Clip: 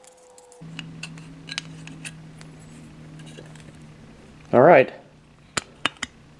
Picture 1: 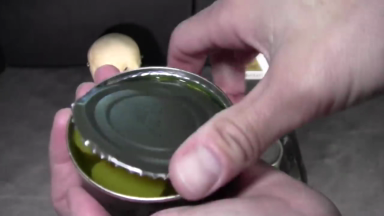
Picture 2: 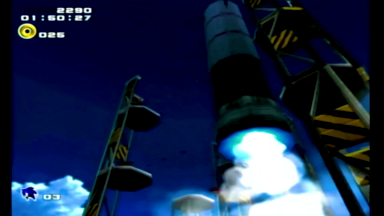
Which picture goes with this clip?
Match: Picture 1